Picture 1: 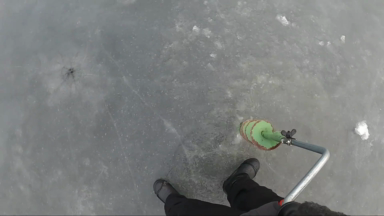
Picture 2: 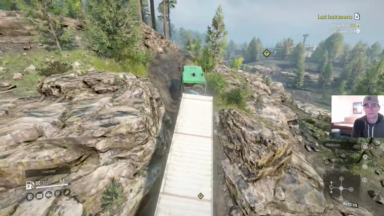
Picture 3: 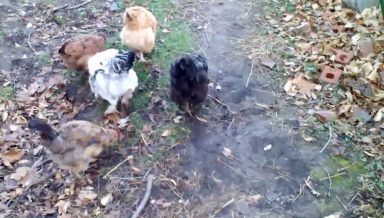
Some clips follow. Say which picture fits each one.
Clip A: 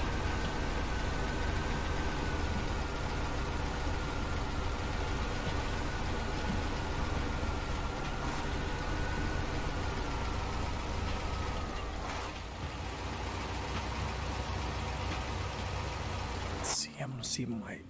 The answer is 2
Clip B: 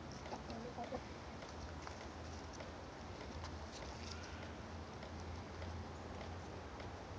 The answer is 3